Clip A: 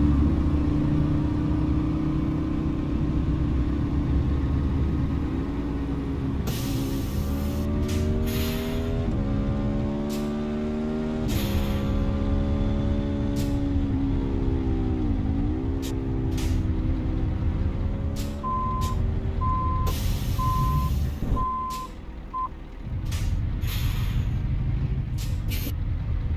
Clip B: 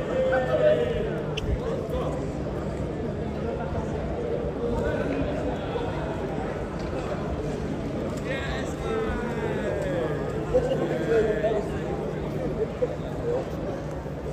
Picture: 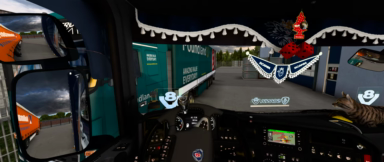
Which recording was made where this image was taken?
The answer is A